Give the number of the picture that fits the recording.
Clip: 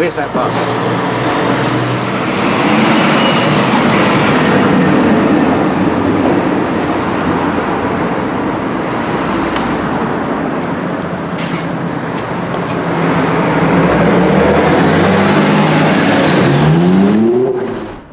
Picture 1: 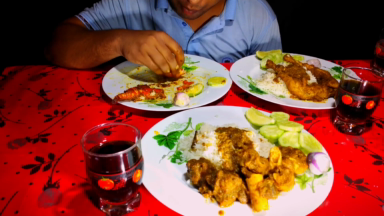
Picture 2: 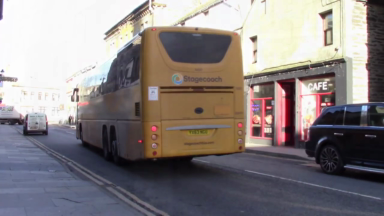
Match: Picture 2